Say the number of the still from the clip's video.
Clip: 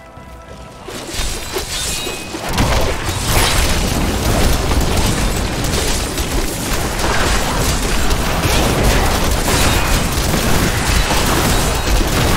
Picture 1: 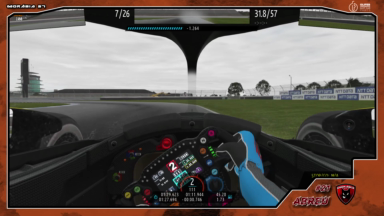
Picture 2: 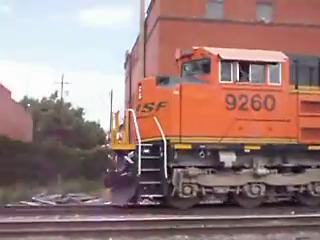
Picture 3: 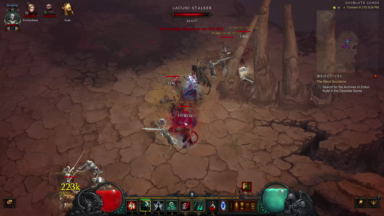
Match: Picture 3